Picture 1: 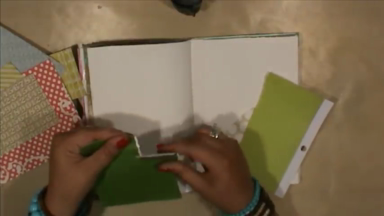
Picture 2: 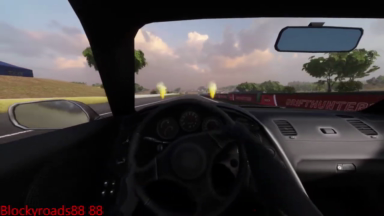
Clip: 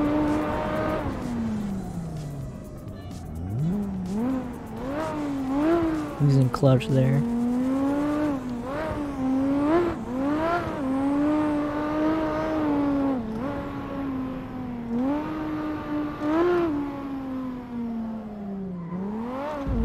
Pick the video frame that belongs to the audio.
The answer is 2